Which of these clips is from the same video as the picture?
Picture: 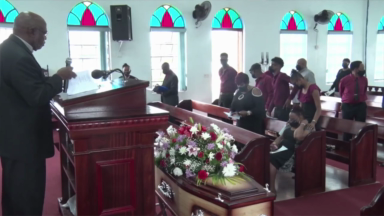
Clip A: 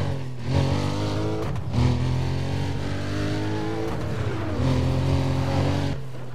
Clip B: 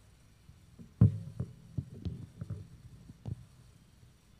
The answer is B